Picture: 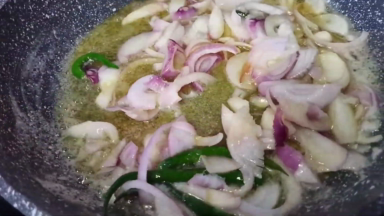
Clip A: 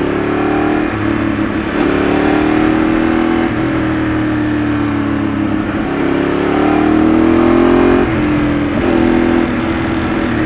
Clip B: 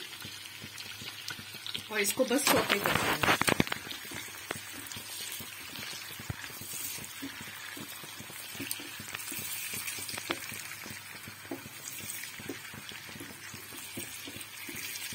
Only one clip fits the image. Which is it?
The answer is B